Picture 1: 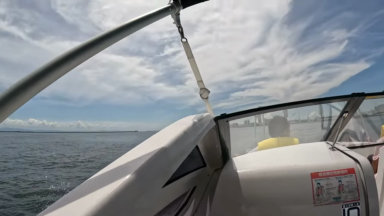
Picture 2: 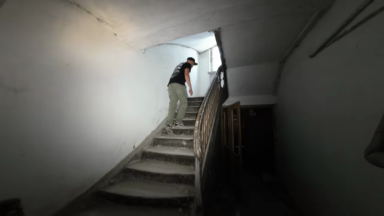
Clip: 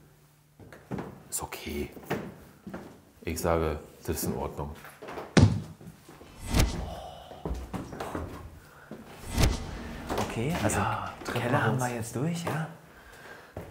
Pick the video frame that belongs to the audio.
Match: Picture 2